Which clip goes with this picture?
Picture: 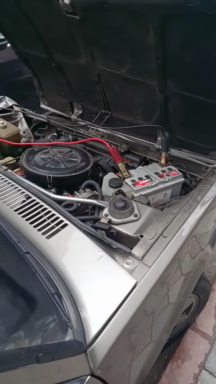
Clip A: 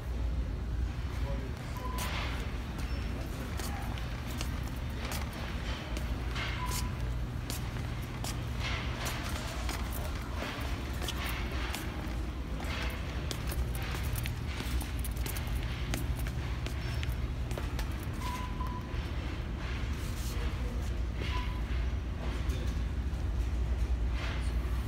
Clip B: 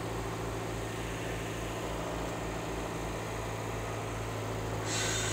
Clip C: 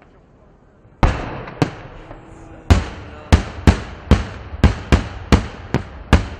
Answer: B